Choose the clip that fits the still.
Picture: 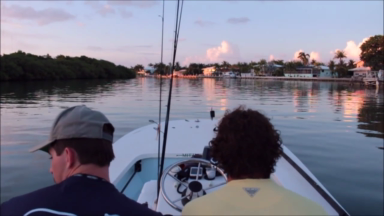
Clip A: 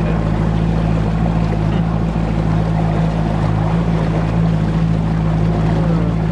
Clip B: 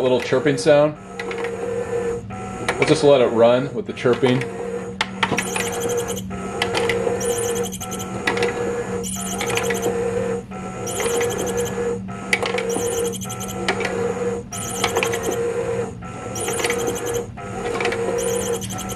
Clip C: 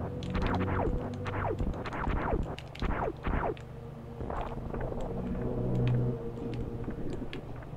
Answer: A